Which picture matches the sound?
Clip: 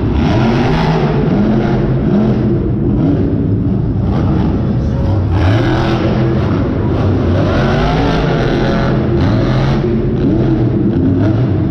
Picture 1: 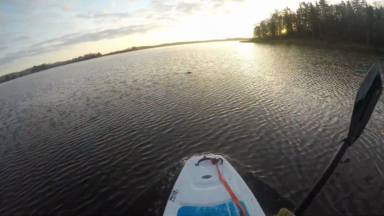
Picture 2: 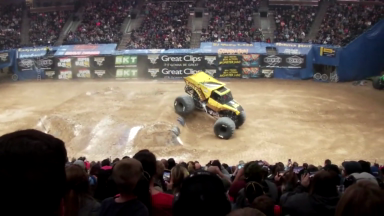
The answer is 2